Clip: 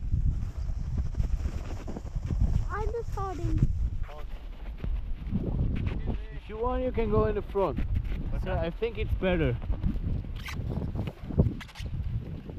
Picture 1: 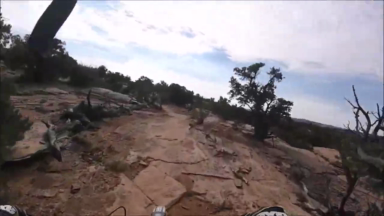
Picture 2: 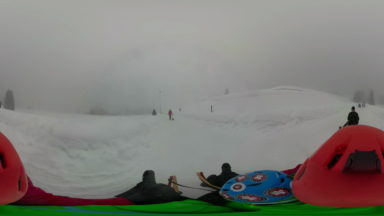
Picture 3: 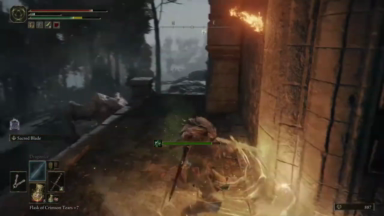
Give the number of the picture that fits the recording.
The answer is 2